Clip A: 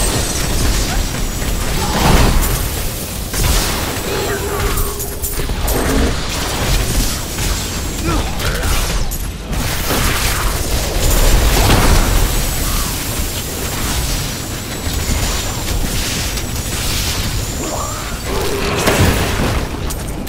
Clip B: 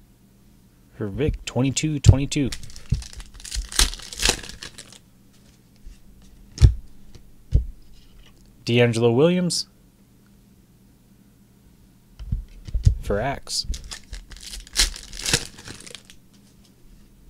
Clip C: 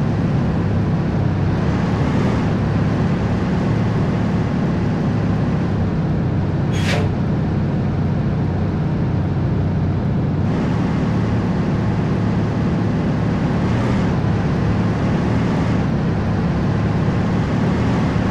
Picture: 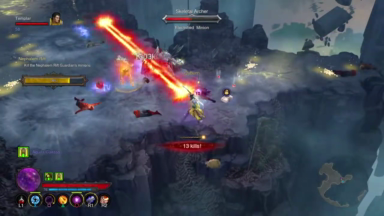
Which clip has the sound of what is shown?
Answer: A